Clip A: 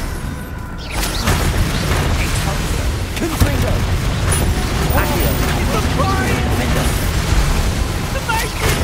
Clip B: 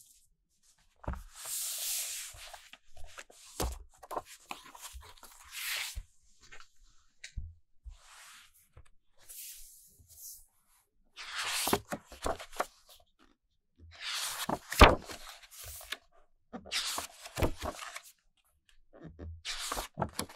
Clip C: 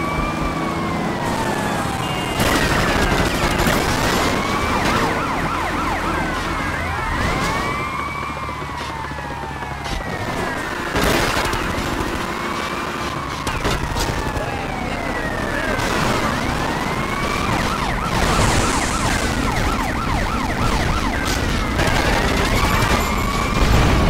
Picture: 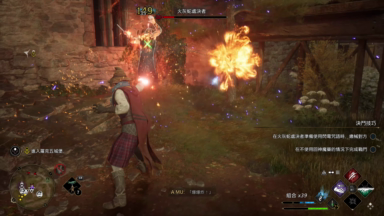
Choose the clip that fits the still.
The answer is A